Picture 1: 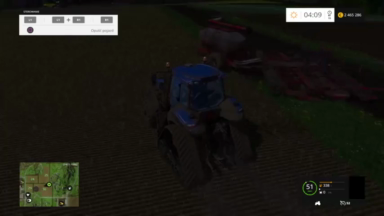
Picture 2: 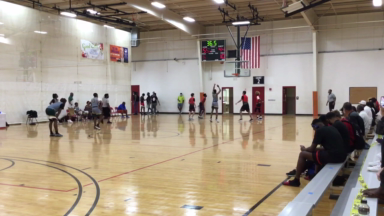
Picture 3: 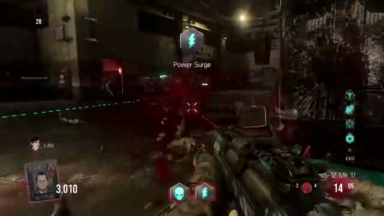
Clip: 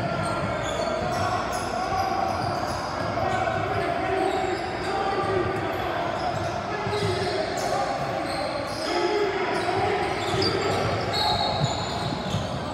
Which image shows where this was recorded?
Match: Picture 2